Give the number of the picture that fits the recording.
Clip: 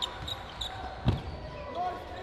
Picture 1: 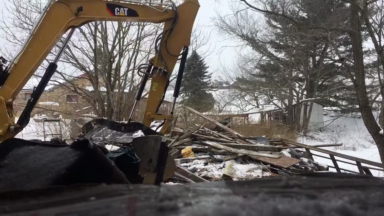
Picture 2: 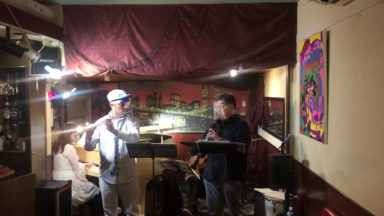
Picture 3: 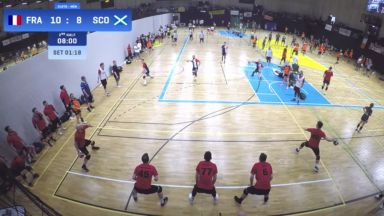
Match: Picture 3